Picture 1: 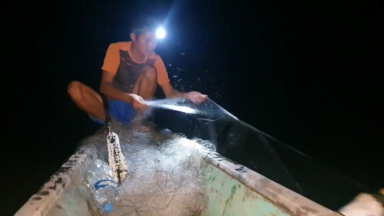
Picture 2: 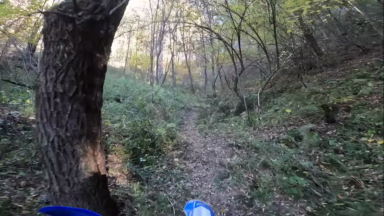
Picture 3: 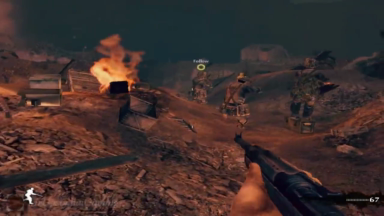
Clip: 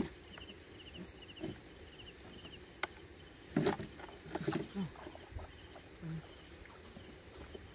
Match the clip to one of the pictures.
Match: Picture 1